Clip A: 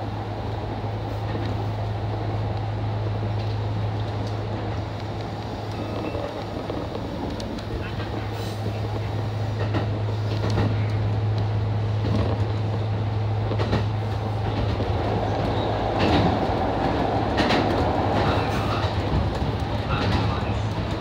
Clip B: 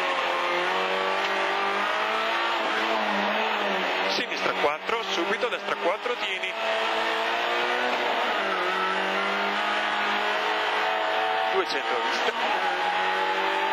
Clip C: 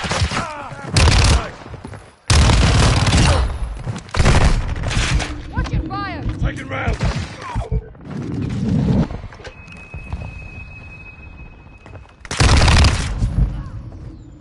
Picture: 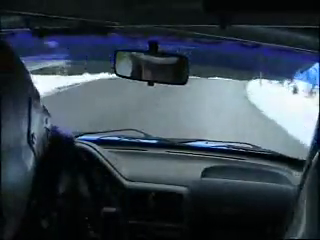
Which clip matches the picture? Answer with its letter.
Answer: B